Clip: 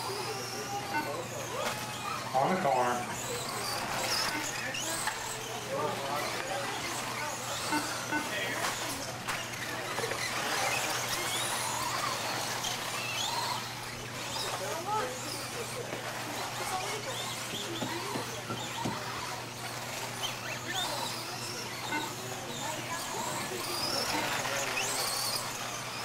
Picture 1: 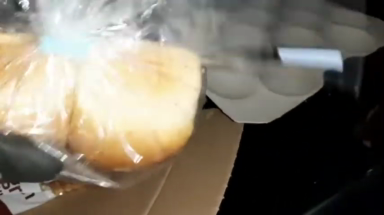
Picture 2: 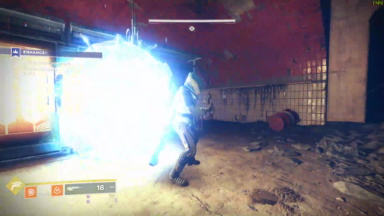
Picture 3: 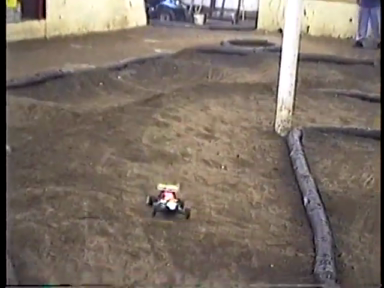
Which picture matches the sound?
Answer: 3